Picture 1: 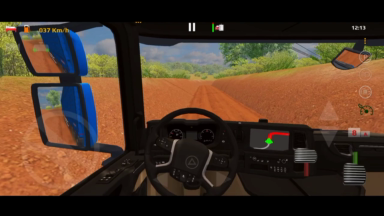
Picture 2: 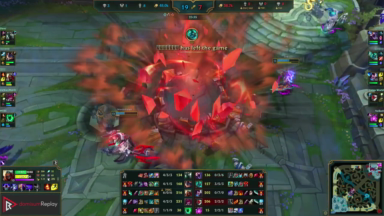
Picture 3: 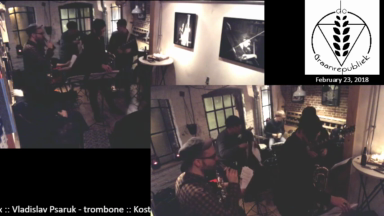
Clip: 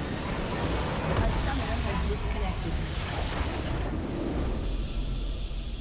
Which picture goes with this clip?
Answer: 2